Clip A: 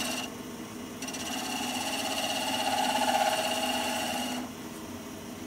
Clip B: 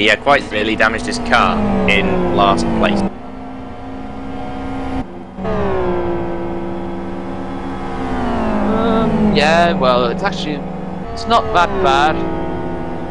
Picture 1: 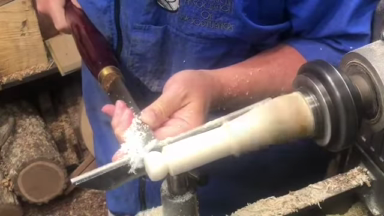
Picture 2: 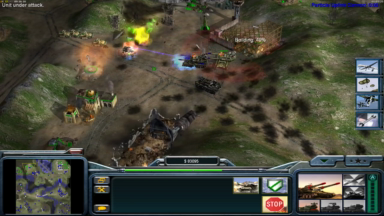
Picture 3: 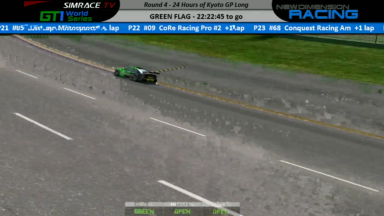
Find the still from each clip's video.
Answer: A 1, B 3